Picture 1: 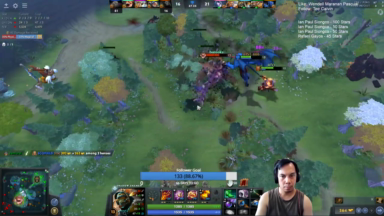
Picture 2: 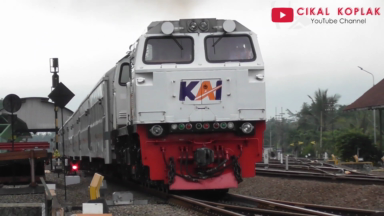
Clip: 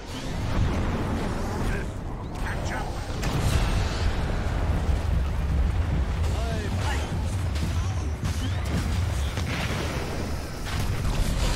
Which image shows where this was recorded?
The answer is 1